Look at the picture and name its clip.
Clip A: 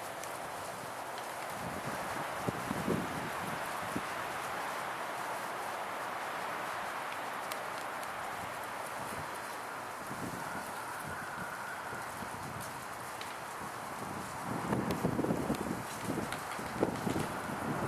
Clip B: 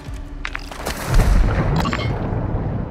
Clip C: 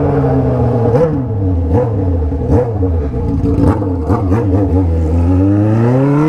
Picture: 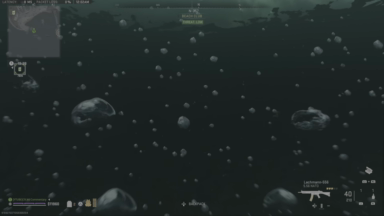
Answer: B